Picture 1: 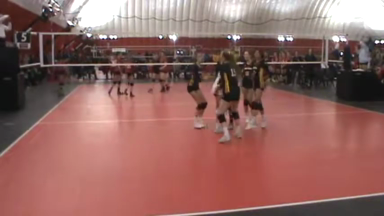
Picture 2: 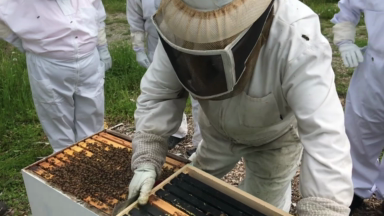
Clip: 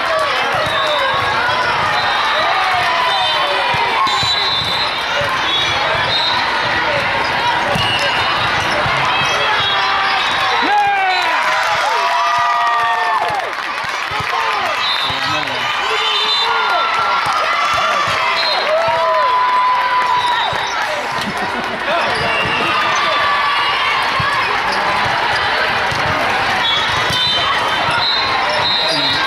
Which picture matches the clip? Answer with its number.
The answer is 1